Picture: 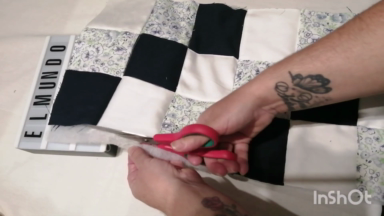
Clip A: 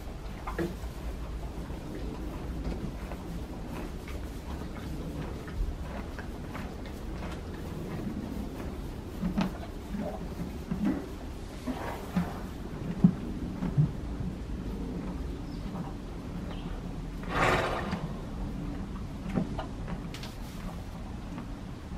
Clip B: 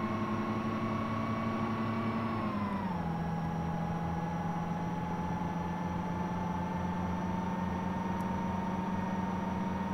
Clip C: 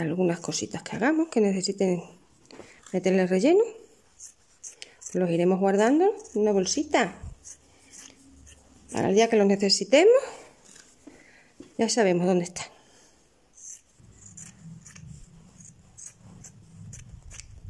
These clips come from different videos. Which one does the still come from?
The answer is C